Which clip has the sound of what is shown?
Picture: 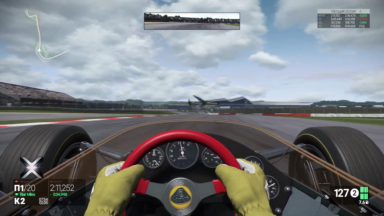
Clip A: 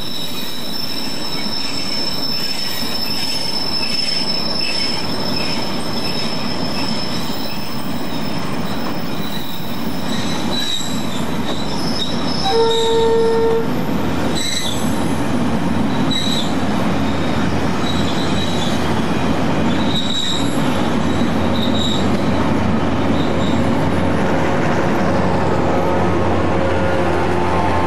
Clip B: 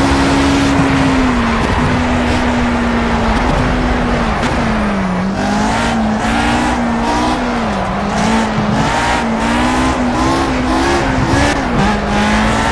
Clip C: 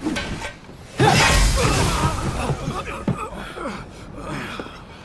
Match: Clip B